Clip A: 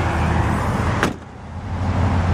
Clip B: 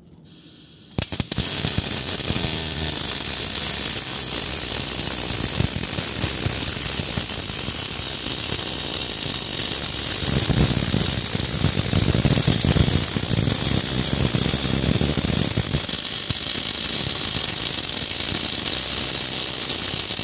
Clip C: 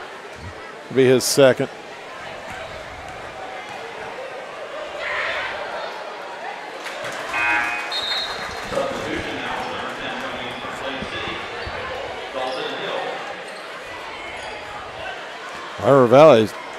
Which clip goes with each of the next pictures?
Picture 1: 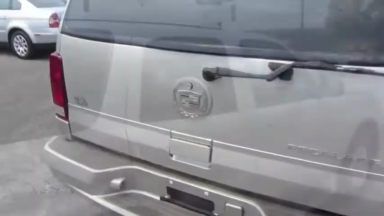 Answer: A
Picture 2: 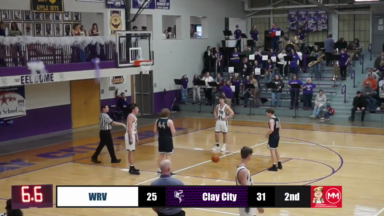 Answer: C